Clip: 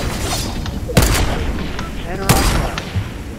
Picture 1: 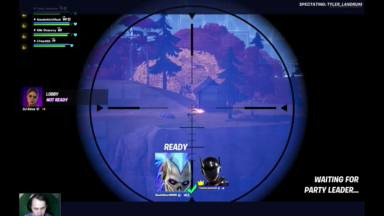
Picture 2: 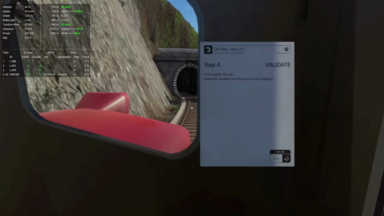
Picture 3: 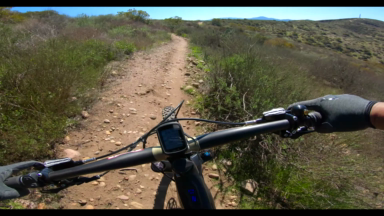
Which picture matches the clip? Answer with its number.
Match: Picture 1